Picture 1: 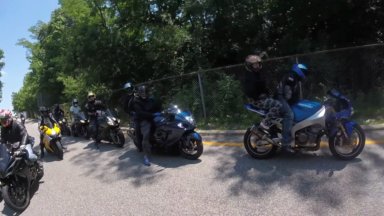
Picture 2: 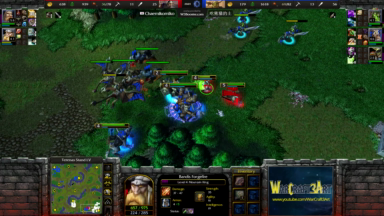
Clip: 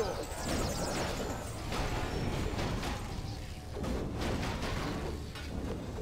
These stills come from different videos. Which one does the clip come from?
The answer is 2